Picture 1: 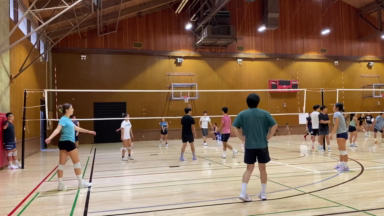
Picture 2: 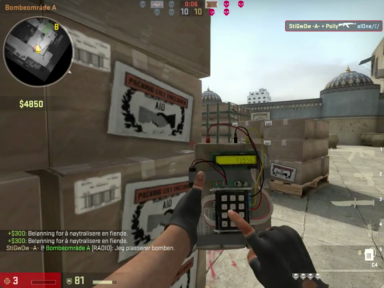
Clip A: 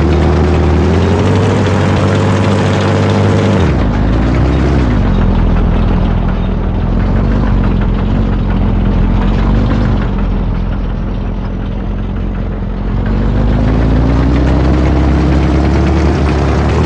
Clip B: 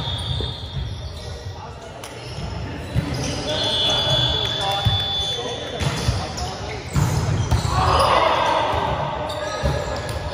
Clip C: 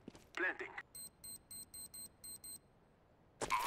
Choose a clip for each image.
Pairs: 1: B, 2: C